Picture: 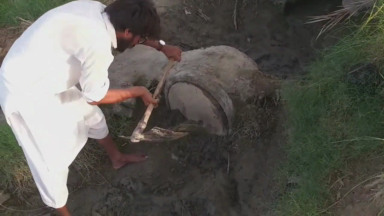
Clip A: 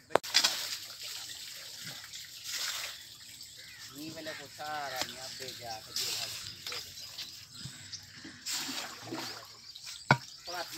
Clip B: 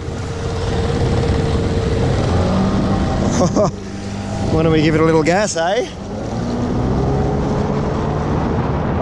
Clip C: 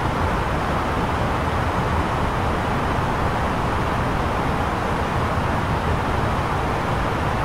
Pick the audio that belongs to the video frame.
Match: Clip A